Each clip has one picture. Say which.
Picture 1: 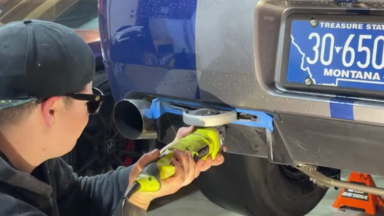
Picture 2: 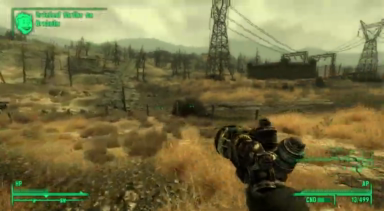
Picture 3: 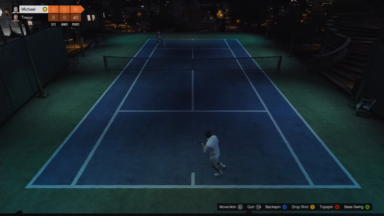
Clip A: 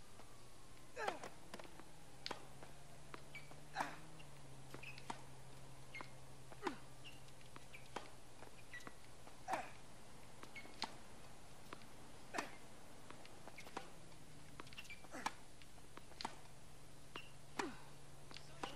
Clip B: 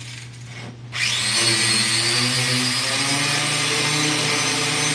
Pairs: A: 3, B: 1